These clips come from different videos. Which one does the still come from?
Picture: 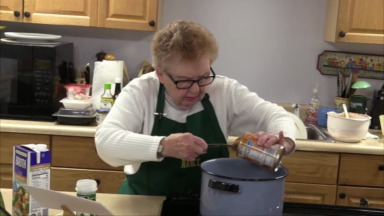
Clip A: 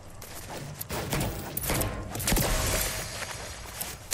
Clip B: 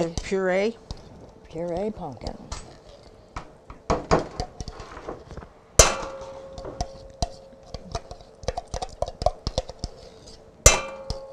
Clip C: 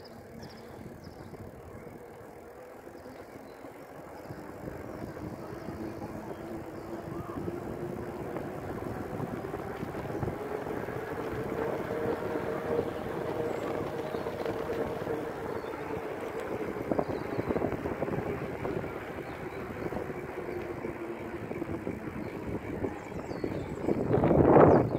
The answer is B